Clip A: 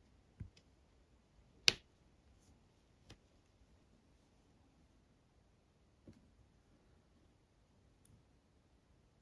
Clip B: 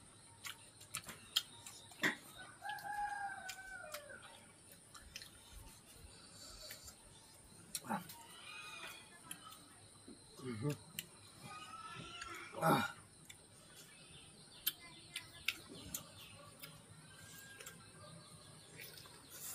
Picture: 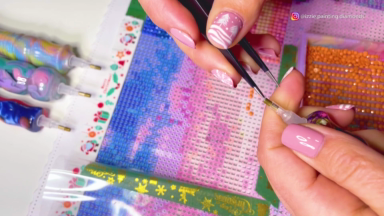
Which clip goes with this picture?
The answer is A